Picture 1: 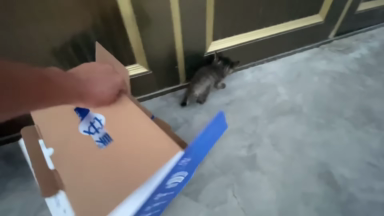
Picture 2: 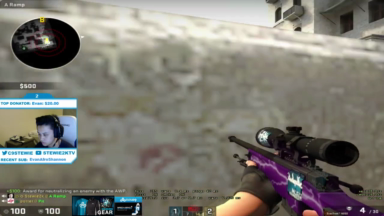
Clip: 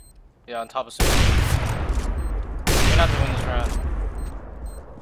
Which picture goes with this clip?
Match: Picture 2